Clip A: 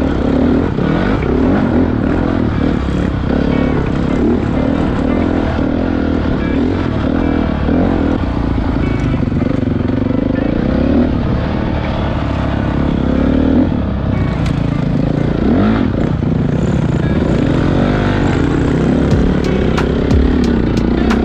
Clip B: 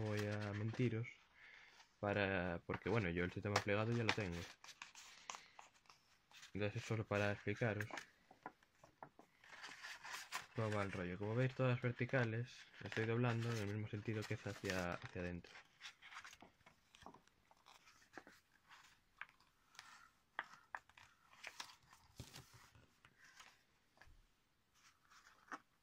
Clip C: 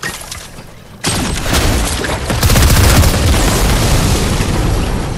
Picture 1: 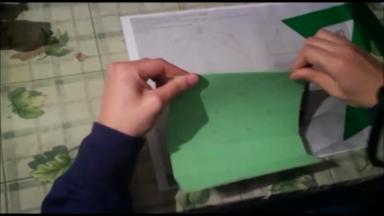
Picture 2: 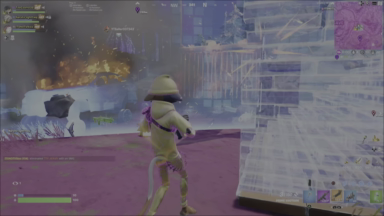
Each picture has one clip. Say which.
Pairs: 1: B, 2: C